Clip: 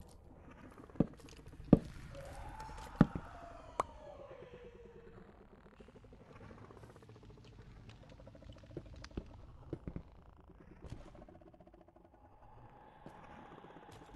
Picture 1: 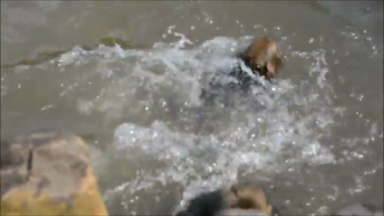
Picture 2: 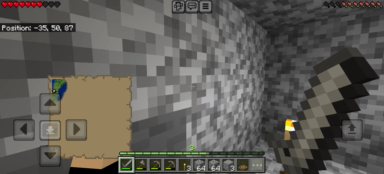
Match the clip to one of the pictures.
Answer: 2